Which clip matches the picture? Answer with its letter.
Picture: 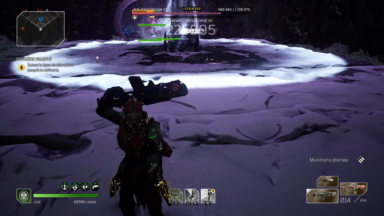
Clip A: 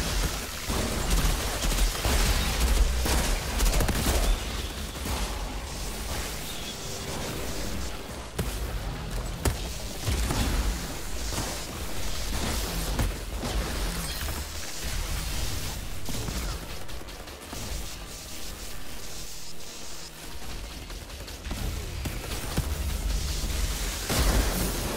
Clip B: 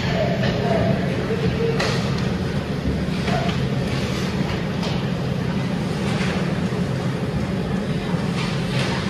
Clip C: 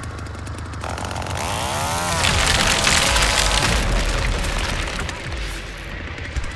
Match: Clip A